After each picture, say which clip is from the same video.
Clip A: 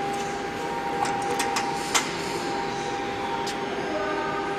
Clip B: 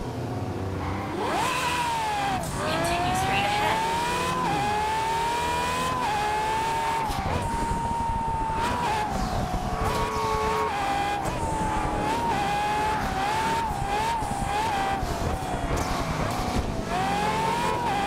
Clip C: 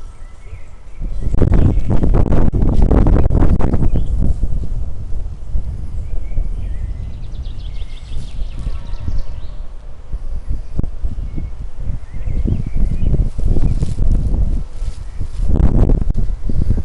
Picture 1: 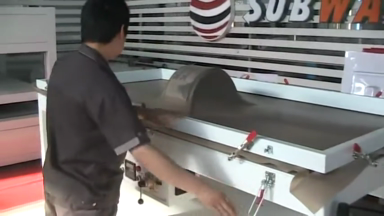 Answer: A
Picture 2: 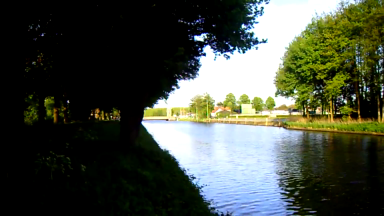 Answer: C